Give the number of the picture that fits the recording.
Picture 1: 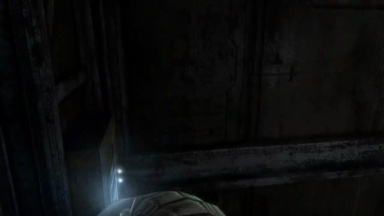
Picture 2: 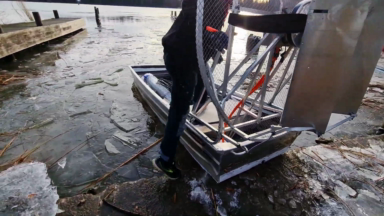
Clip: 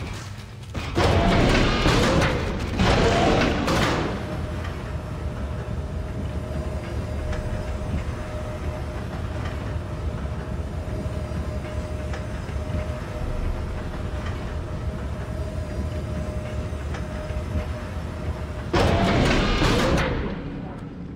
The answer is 1